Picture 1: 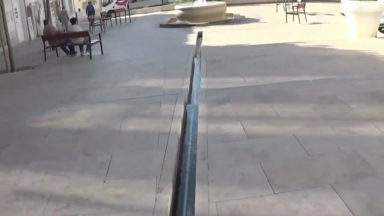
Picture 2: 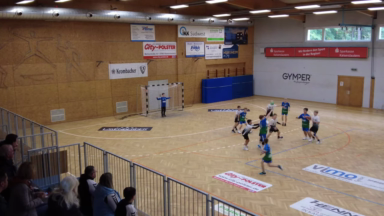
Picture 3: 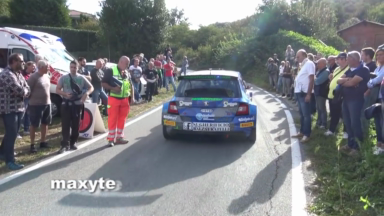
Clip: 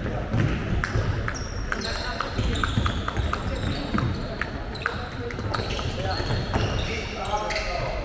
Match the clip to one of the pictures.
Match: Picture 2